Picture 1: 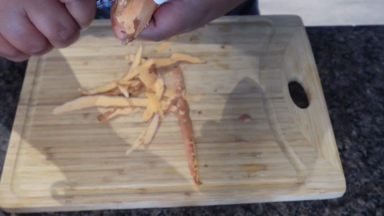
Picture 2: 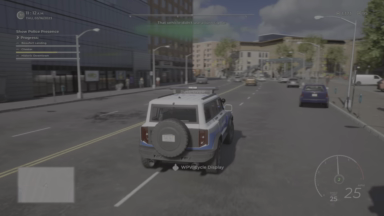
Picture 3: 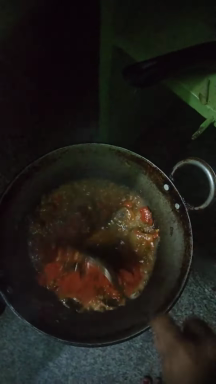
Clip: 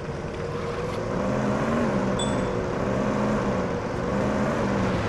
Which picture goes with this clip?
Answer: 2